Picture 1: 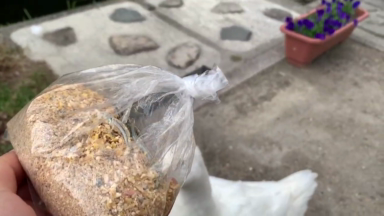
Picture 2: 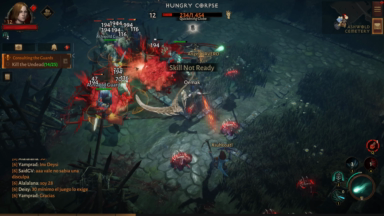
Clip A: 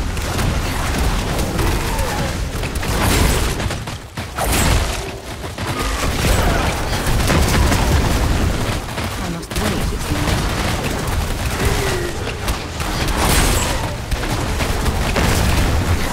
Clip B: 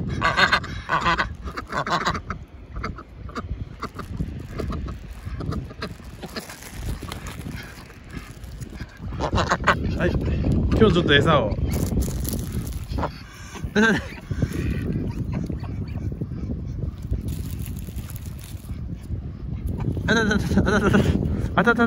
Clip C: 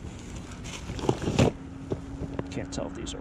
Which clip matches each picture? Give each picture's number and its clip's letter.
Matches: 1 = B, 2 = A